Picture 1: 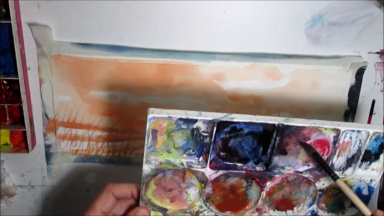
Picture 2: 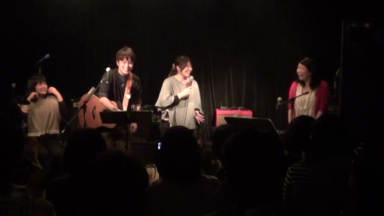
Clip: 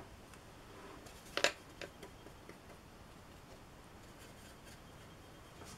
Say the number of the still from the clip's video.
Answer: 1